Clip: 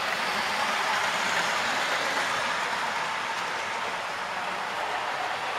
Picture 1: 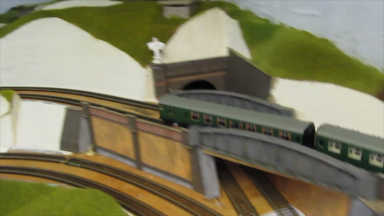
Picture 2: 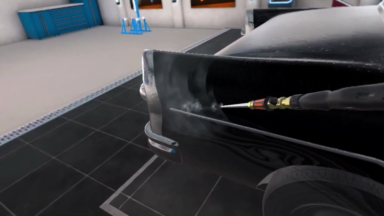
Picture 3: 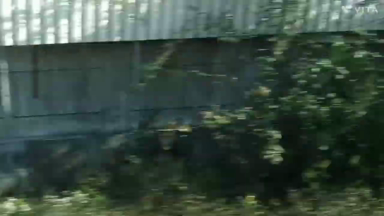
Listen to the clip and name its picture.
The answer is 1